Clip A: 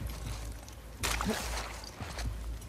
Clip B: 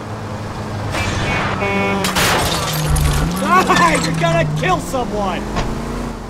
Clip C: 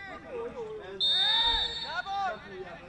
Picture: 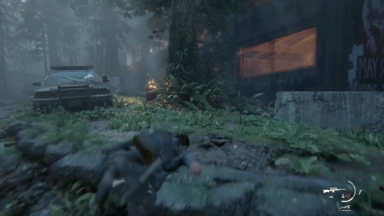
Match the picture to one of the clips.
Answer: A